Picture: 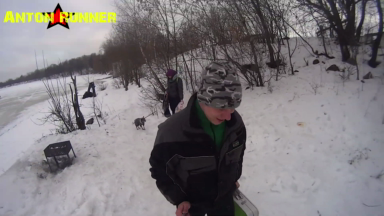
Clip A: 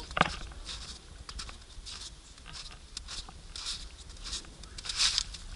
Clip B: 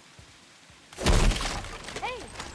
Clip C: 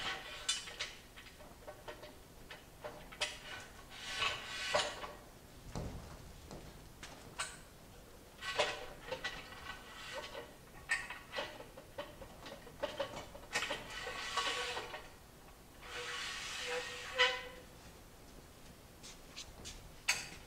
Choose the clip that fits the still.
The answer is A